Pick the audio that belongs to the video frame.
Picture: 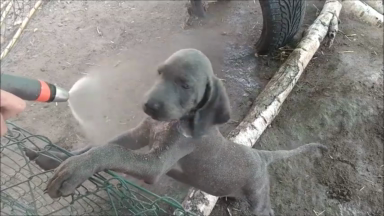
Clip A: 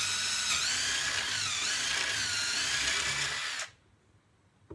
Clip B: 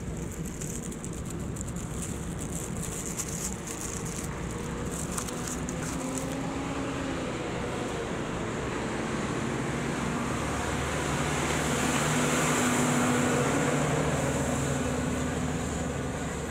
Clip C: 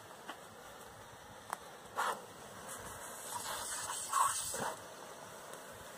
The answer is C